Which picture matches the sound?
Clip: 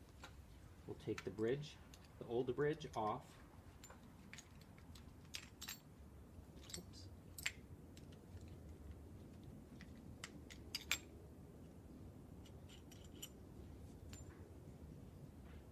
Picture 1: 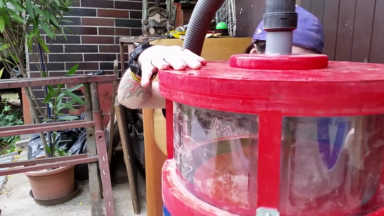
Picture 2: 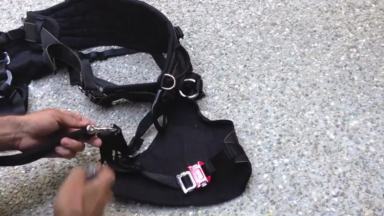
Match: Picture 2